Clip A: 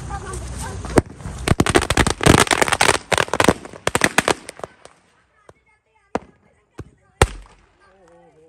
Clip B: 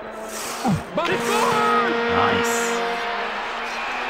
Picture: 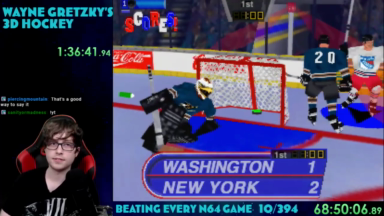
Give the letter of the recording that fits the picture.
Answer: B